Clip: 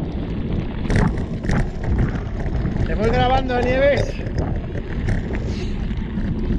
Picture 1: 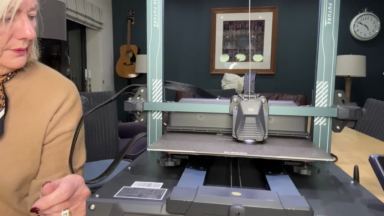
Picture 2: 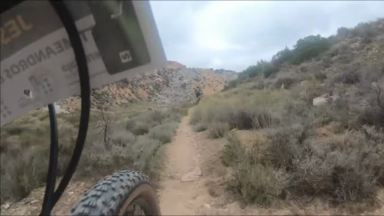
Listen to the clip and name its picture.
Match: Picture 2